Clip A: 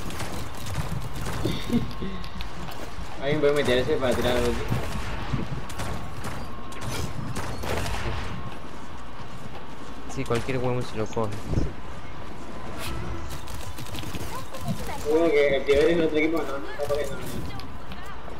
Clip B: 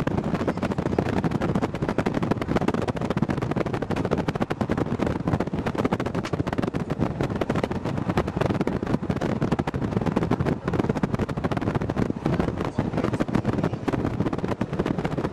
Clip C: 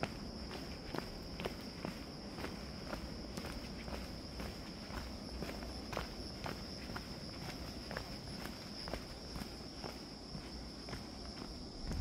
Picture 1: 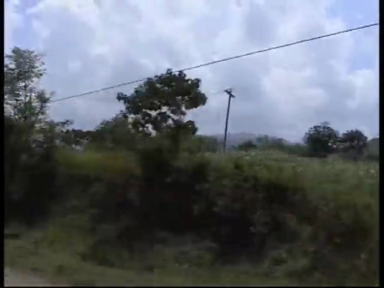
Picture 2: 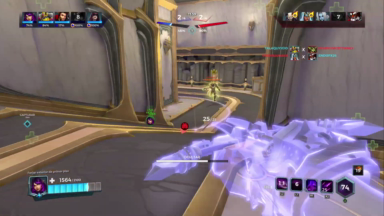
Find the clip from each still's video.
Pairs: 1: B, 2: A